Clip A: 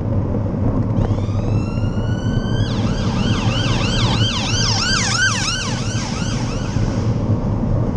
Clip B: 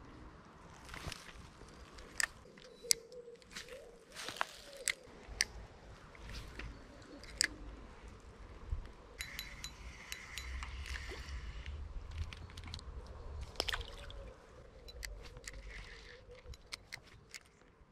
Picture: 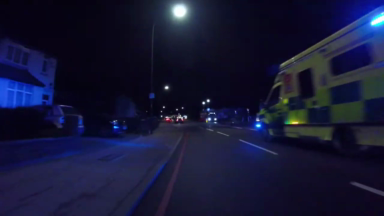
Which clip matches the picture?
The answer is A